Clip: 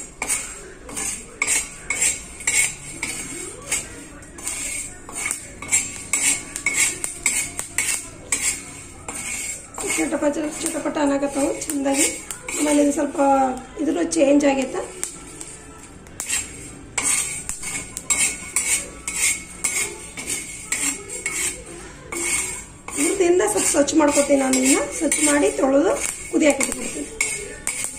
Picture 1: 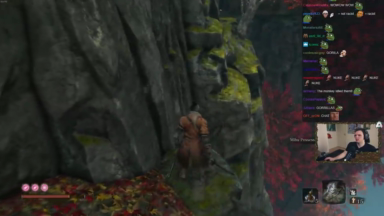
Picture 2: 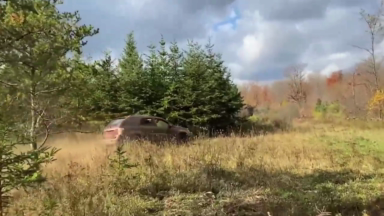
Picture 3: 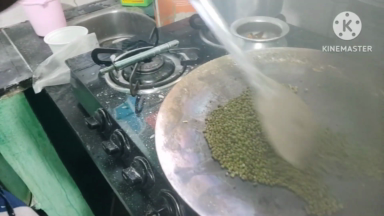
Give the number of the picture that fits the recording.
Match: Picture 3